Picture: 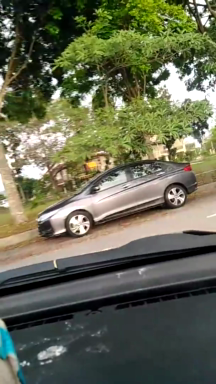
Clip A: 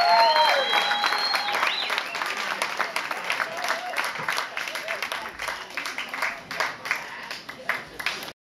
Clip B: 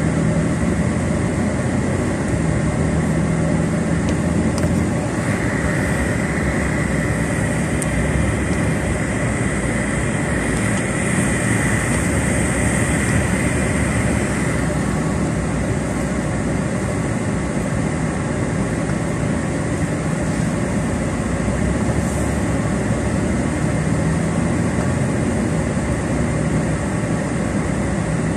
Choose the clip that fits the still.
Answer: B